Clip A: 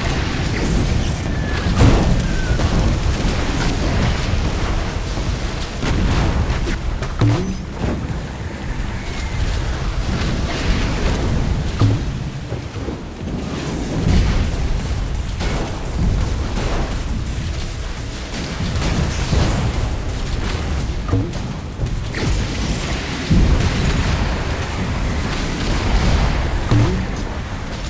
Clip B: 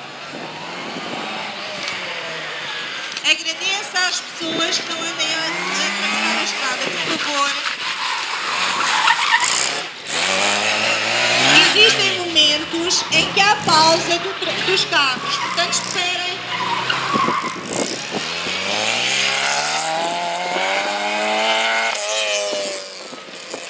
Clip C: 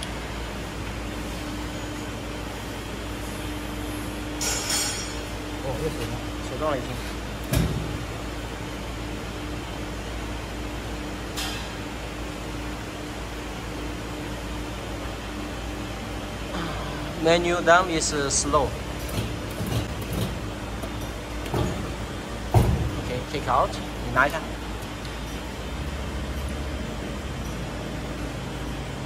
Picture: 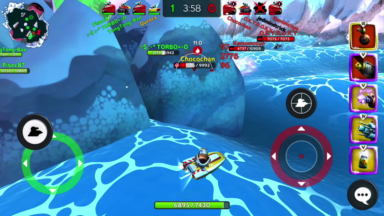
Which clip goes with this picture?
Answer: A